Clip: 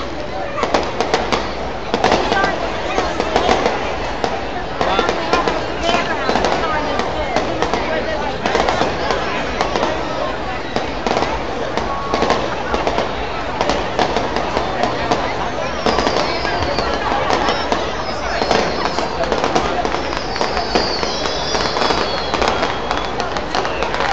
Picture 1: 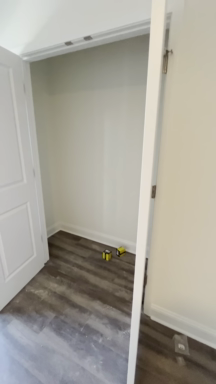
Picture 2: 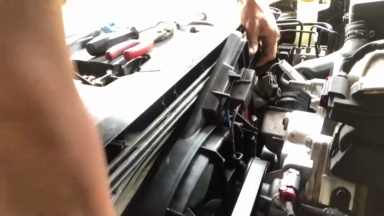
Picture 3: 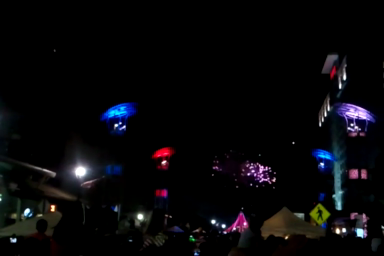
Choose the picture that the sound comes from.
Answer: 3